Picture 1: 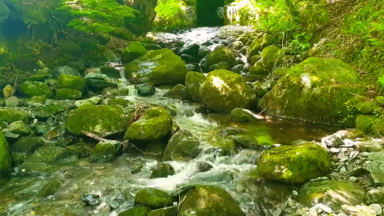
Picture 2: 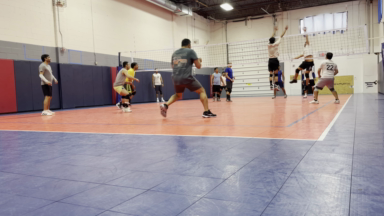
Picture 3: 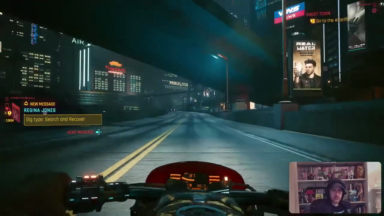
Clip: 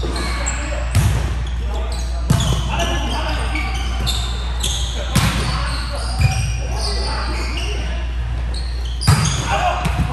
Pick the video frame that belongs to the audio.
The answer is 2